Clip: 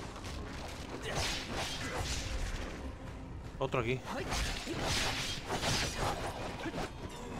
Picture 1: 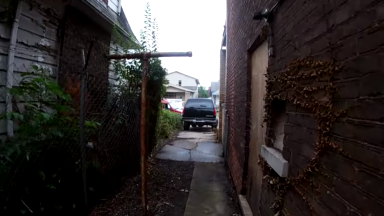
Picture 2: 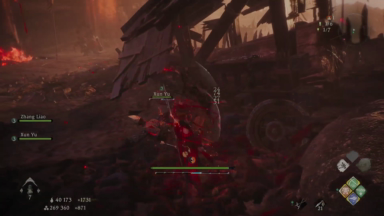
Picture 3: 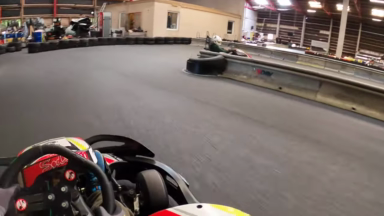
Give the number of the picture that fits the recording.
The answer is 2